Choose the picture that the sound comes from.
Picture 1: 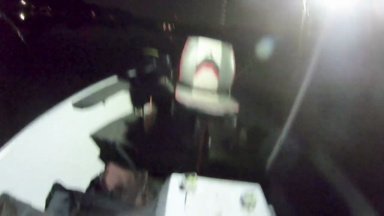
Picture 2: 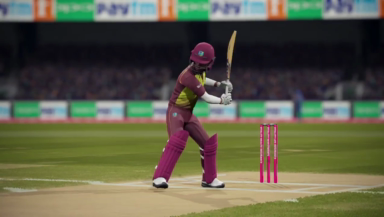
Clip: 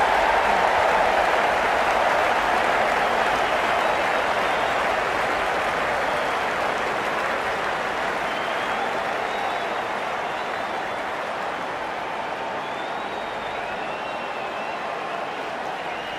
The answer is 2